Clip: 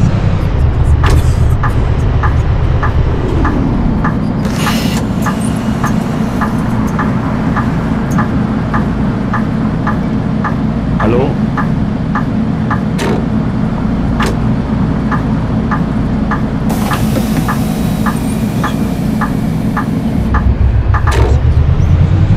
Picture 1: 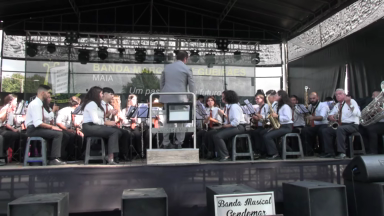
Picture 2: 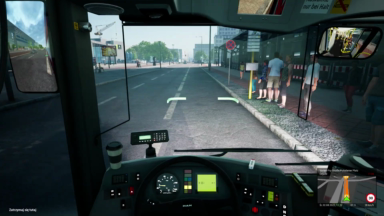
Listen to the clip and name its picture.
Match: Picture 2